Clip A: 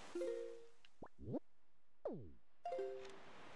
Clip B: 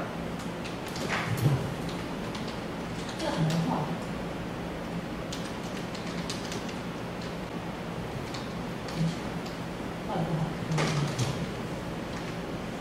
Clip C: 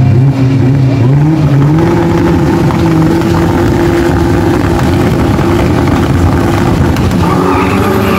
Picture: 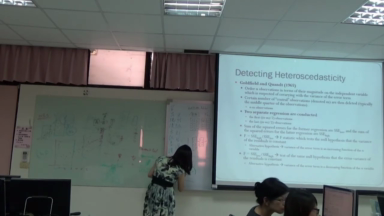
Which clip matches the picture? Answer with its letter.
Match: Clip B